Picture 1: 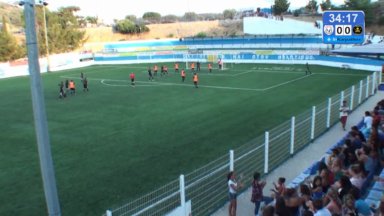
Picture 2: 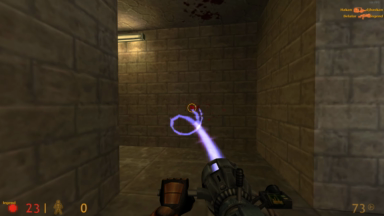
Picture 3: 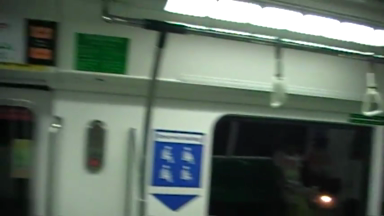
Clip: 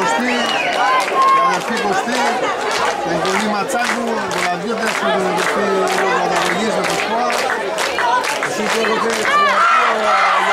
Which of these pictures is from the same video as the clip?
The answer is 1